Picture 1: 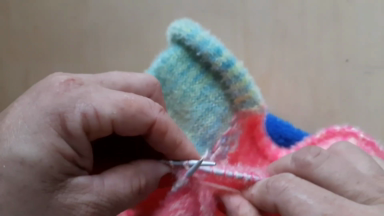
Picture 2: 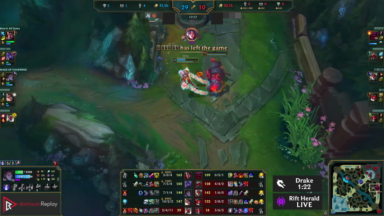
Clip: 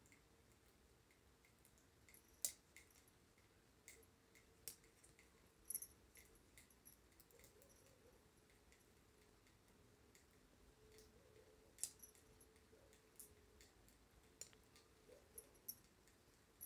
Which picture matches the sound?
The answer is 1